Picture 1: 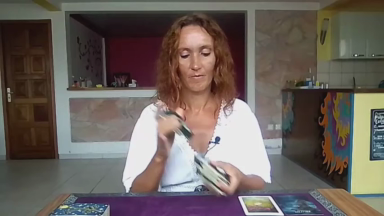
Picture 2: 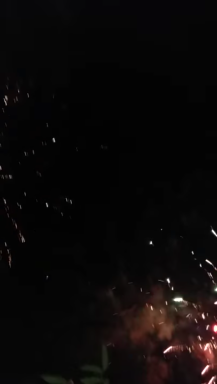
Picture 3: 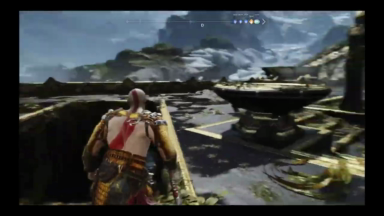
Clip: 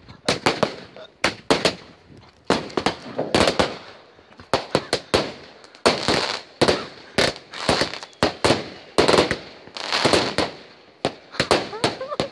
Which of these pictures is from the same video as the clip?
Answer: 2